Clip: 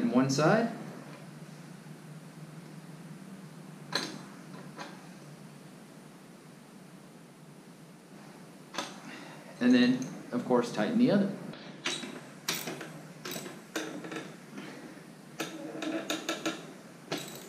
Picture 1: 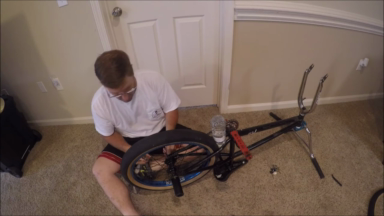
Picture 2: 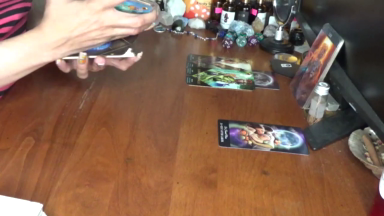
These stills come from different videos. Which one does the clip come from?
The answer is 1